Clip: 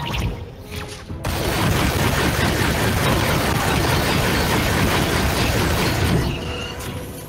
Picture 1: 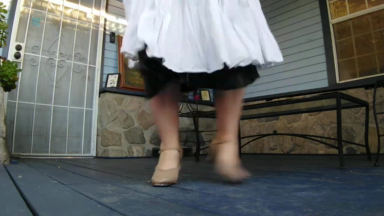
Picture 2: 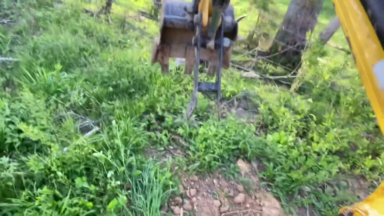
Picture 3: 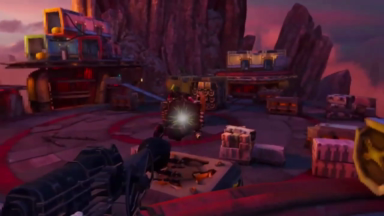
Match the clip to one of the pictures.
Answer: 3